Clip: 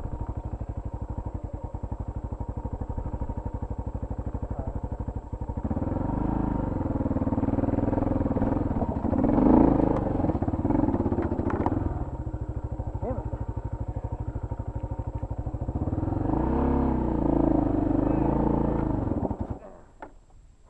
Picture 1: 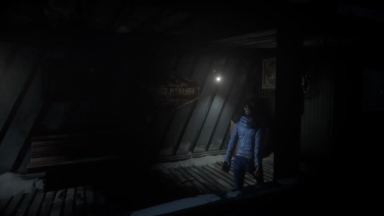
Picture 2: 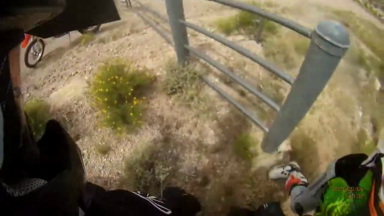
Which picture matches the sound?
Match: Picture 2